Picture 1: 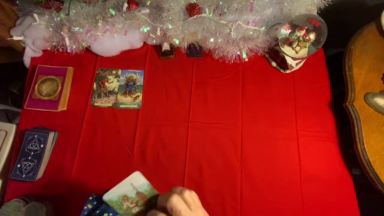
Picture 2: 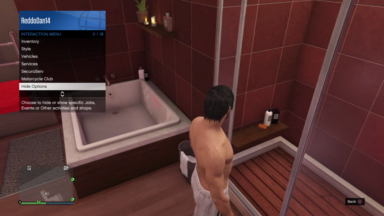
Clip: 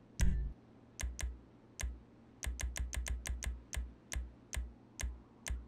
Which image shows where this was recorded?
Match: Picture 2